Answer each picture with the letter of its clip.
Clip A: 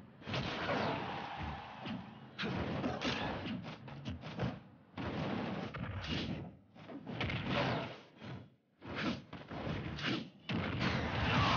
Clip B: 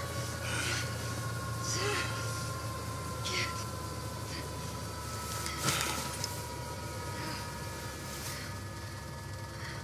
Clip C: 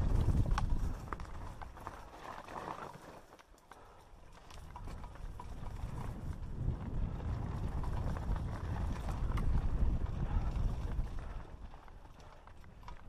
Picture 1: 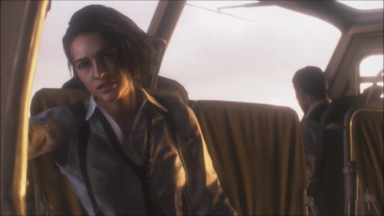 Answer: B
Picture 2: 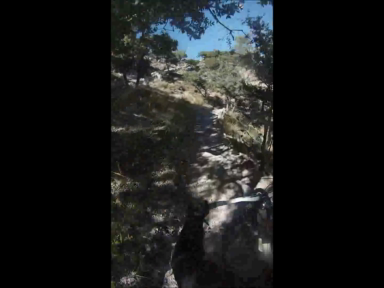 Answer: C